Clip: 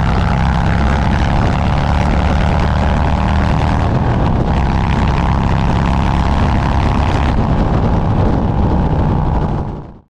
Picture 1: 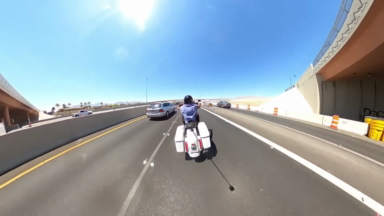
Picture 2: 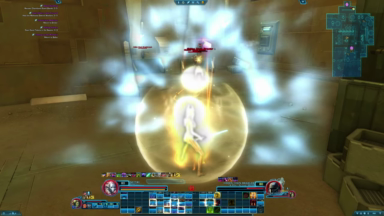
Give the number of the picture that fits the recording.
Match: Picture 1